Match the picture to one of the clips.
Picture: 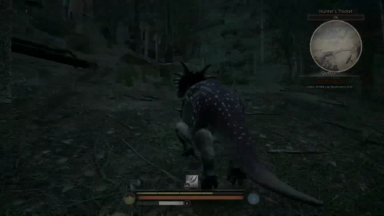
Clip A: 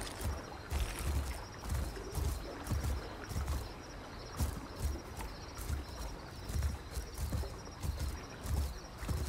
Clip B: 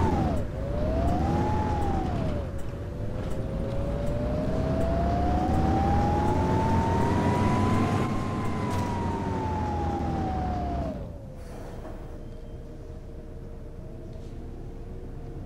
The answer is A